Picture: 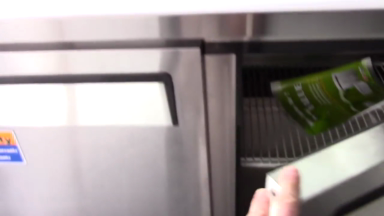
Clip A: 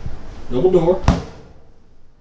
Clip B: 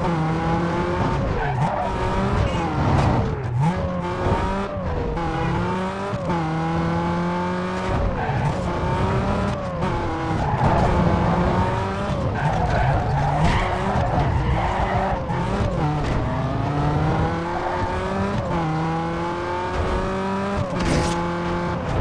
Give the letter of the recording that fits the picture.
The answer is A